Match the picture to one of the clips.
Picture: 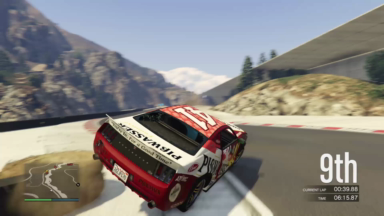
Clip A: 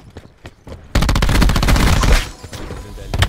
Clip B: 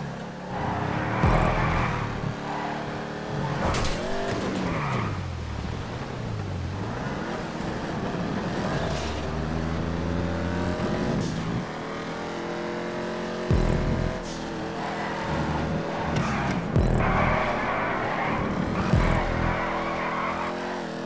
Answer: B